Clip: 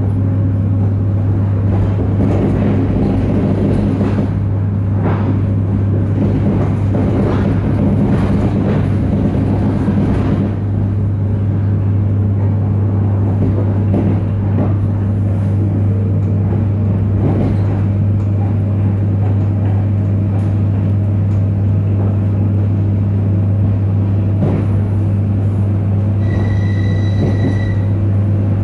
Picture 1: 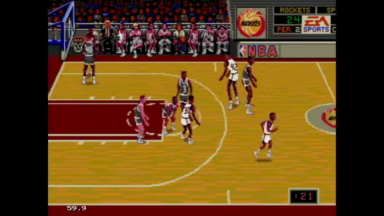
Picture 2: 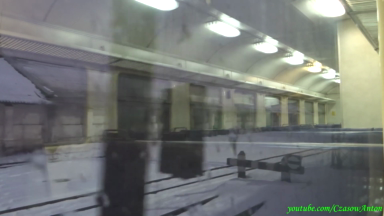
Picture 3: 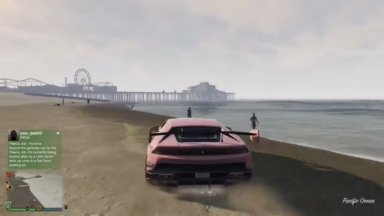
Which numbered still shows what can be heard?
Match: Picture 2